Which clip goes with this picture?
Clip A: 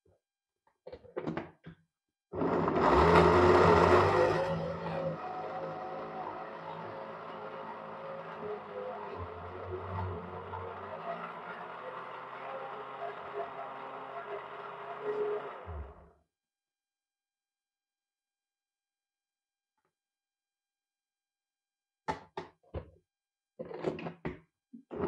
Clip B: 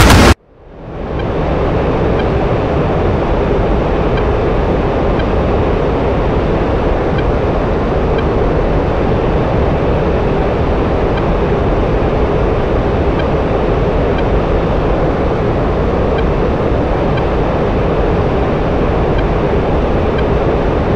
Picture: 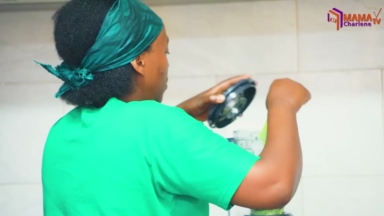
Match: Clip A